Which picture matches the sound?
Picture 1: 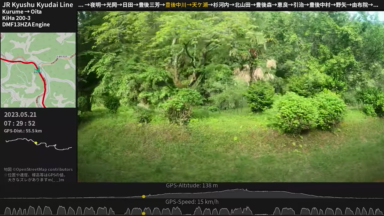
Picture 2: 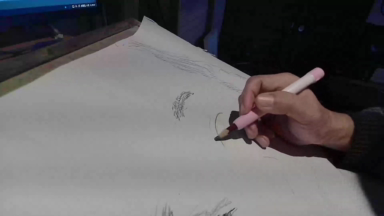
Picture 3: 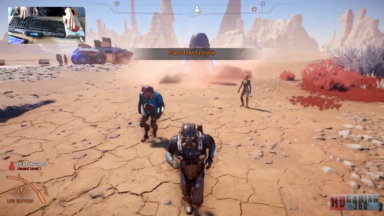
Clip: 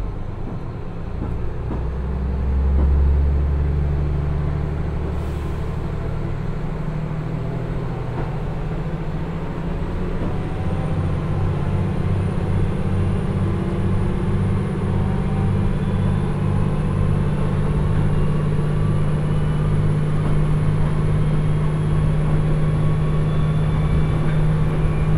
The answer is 1